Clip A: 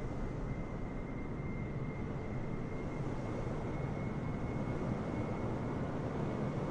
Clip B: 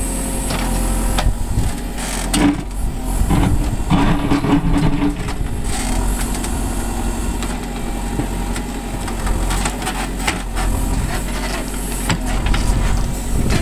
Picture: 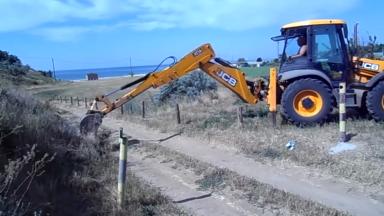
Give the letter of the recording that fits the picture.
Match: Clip B